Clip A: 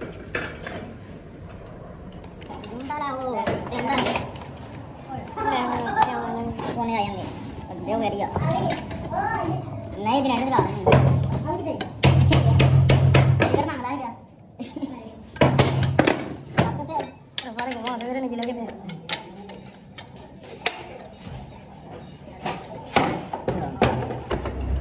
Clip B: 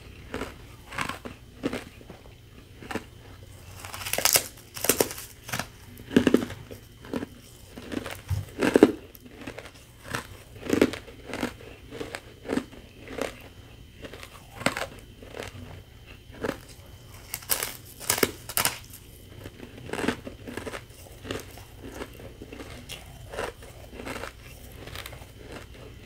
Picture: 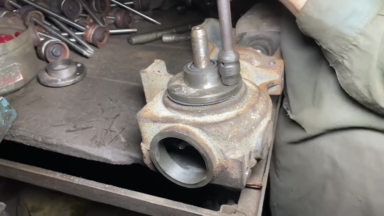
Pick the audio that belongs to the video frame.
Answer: A